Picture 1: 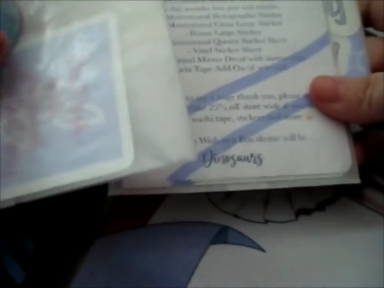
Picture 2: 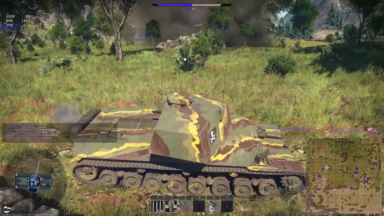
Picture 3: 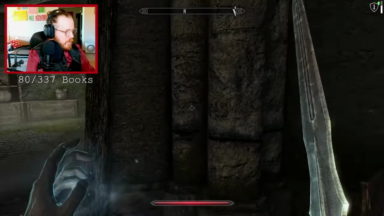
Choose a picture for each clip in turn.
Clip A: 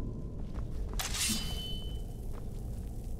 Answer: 3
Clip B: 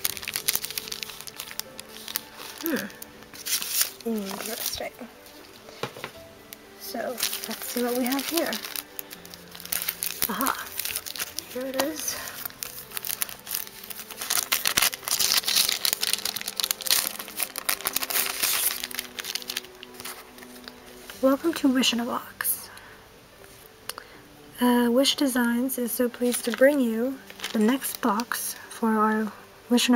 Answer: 1